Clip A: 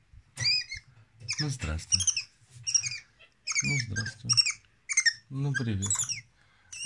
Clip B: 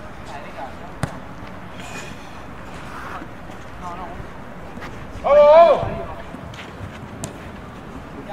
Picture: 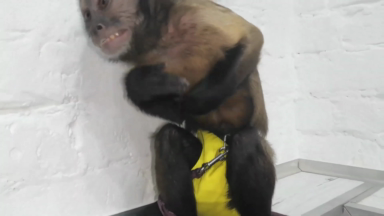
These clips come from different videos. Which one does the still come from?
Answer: A